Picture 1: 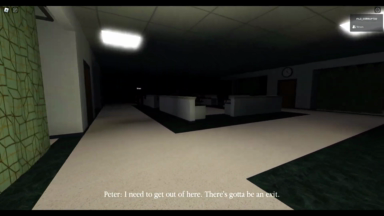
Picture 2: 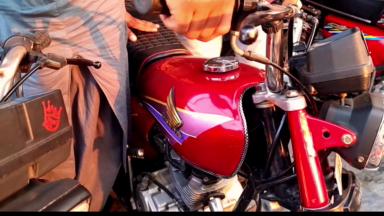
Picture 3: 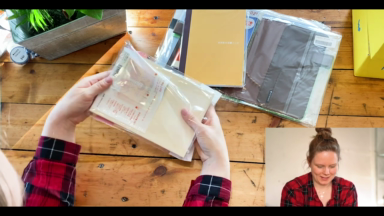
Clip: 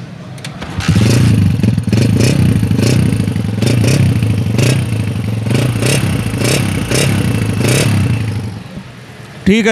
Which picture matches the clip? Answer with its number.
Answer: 2